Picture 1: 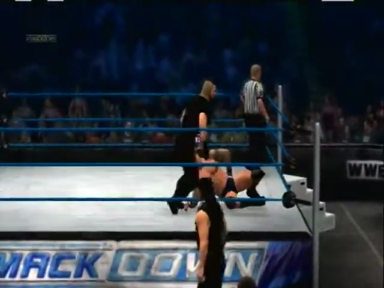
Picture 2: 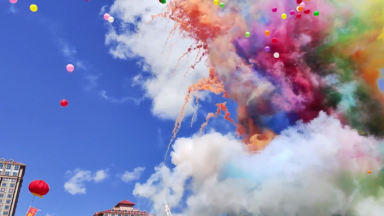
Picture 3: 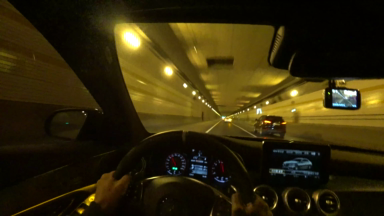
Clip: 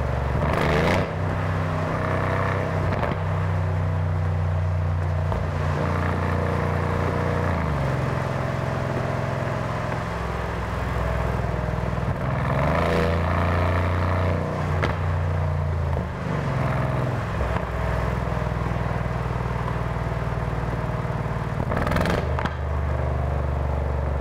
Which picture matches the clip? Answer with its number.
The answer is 3